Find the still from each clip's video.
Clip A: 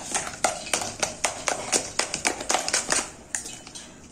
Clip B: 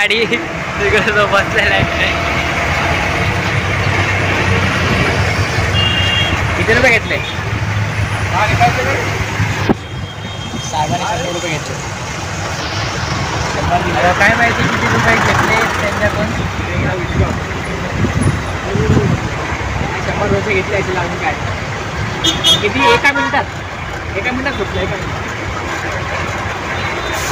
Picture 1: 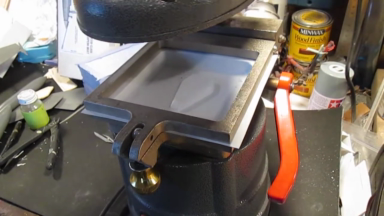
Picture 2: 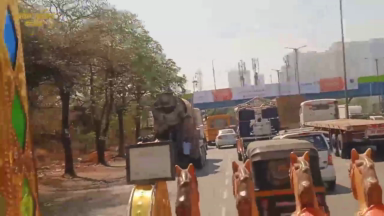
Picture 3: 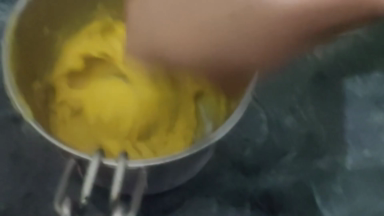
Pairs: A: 3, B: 2